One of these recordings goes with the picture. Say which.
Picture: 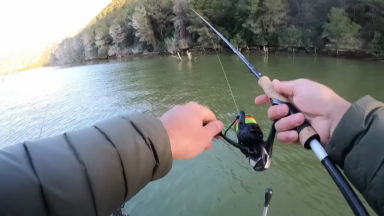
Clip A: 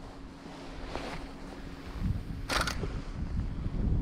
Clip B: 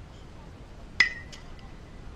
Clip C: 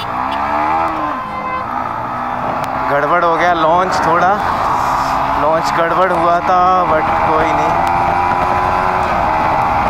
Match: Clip A